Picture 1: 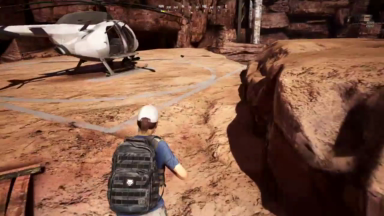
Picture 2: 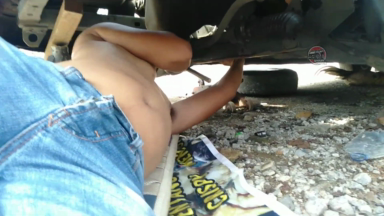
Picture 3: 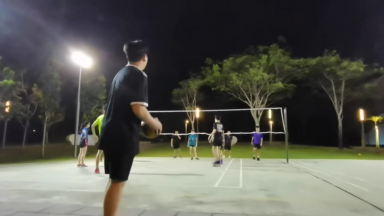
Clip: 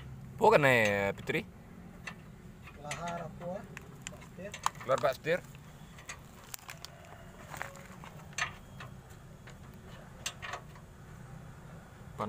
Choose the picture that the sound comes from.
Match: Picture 2